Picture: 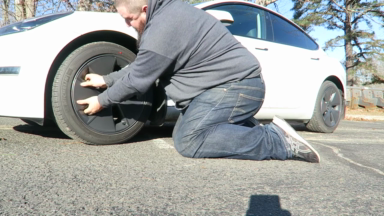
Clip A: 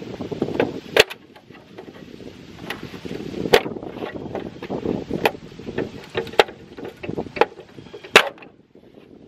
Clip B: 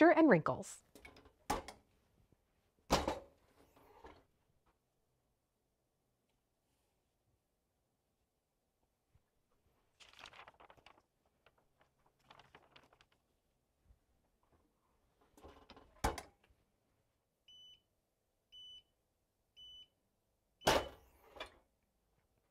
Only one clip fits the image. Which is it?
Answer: A